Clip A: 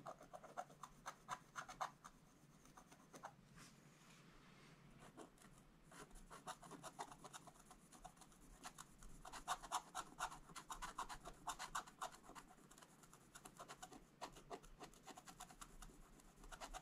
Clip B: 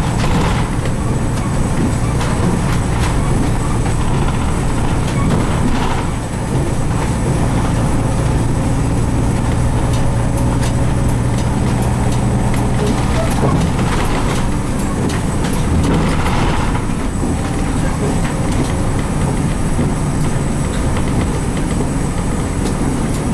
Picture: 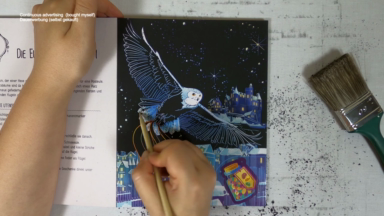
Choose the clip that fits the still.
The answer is A